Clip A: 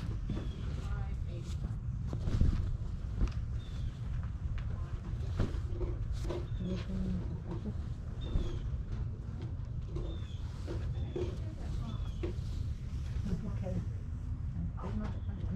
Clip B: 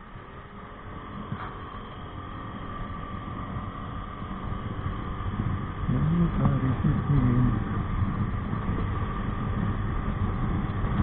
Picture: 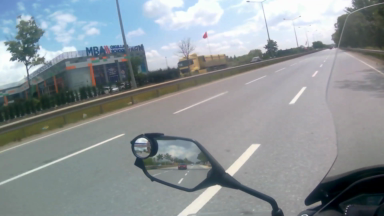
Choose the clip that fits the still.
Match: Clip B